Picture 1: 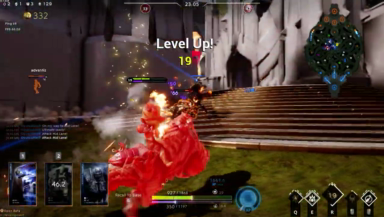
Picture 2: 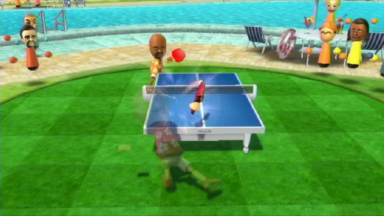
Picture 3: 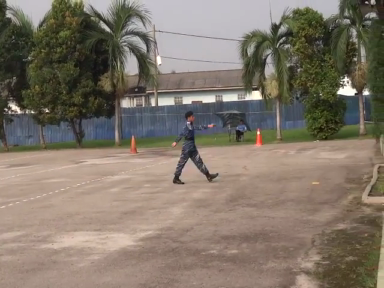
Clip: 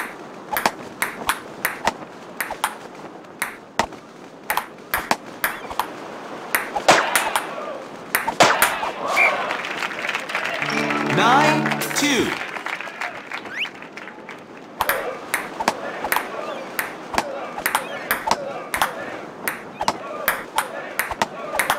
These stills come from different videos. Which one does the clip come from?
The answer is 2